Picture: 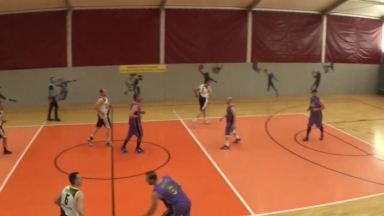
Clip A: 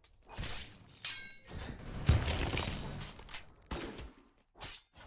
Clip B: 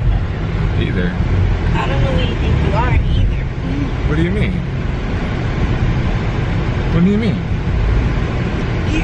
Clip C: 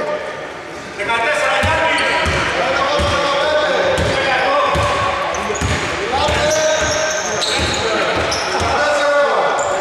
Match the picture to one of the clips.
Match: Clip C